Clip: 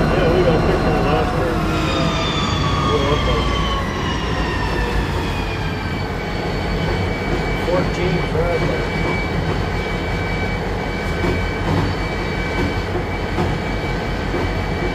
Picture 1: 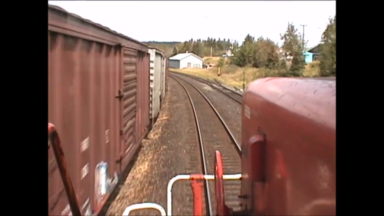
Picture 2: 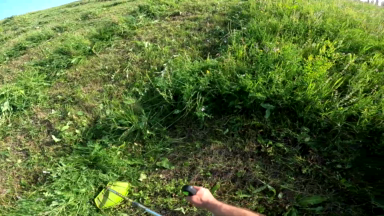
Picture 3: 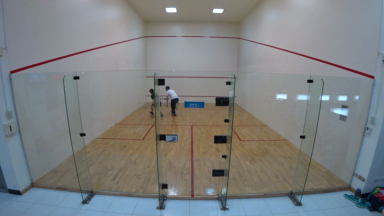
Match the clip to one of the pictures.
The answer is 1